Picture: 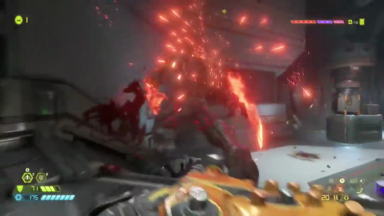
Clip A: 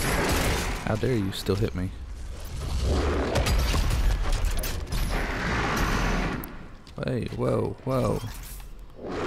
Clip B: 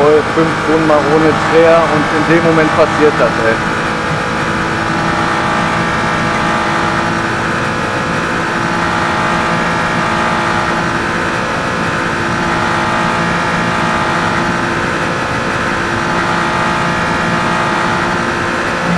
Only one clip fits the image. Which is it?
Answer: A